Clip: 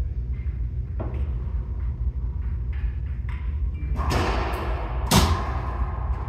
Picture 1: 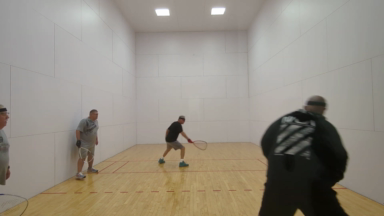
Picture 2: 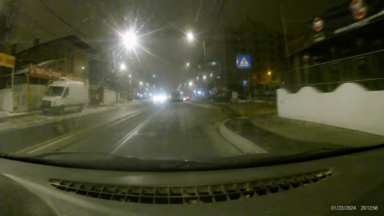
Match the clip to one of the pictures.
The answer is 1